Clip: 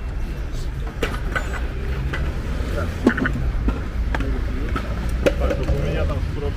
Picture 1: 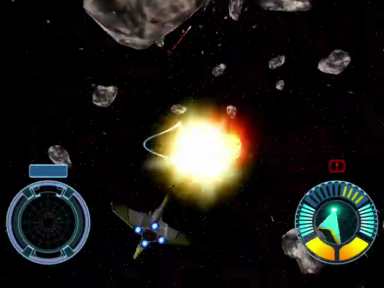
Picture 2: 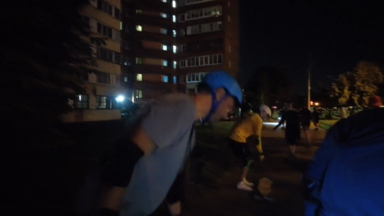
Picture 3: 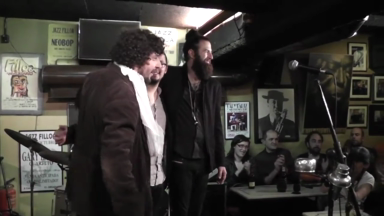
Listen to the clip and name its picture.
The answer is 2